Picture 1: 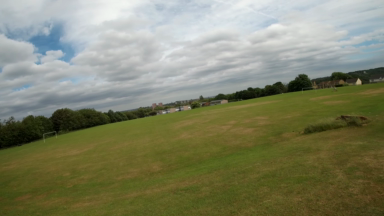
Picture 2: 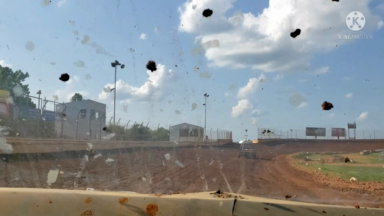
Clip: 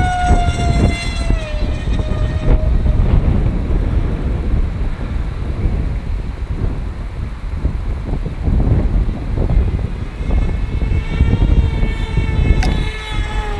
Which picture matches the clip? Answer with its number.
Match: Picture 1